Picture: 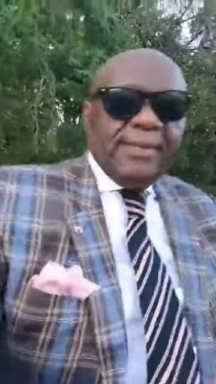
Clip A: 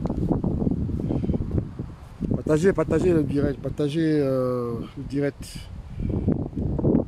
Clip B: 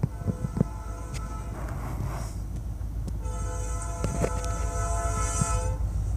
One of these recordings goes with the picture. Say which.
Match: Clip A